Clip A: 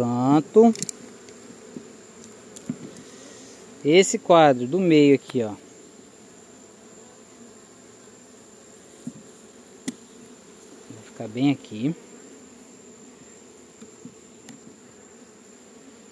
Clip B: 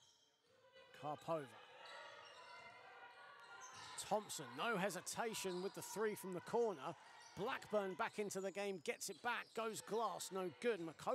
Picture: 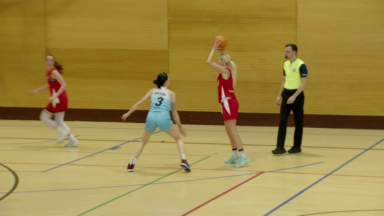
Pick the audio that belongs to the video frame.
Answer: B